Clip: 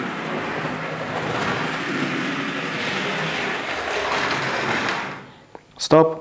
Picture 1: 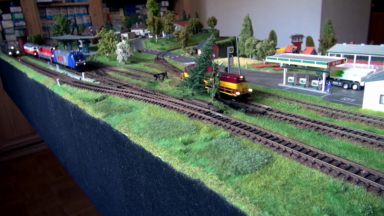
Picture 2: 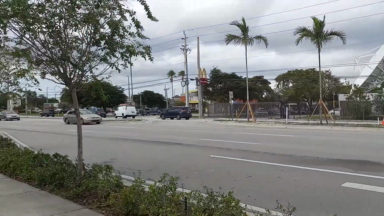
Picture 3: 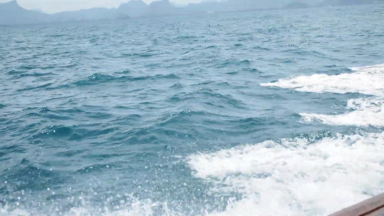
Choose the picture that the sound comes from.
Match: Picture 1